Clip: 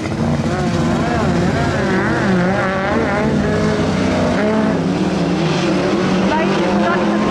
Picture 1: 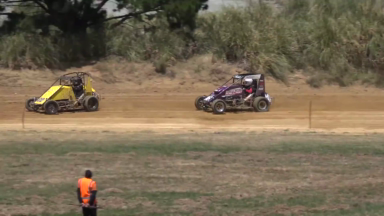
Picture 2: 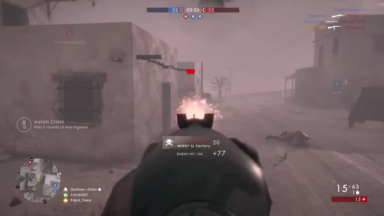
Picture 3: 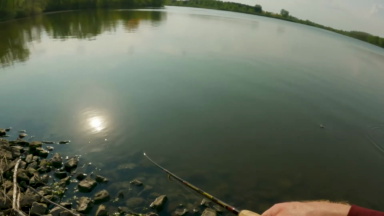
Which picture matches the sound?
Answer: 1